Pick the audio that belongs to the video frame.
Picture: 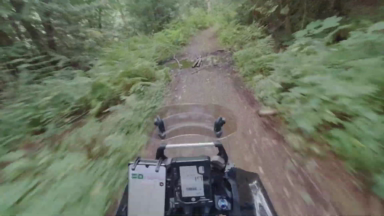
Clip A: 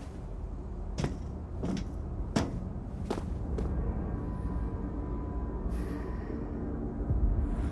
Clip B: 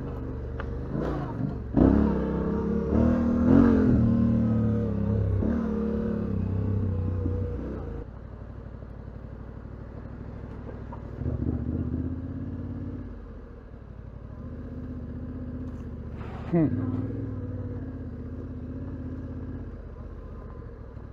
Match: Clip B